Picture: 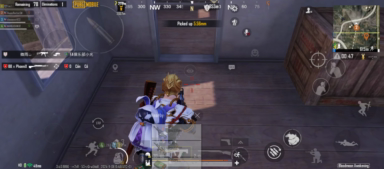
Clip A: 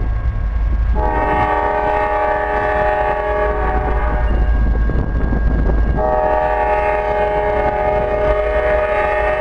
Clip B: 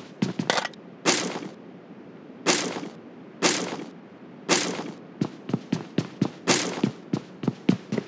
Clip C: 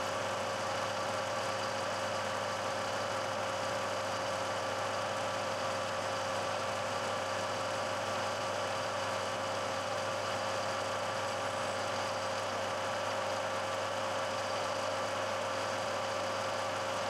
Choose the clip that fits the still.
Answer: B